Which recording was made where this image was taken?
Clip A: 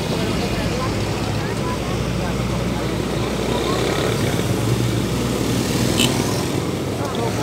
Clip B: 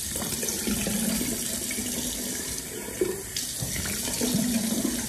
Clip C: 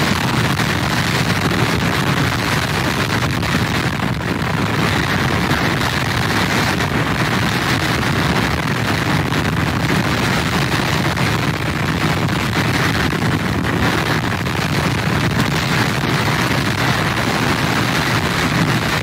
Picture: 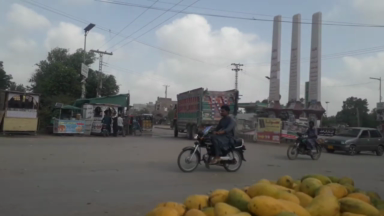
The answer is A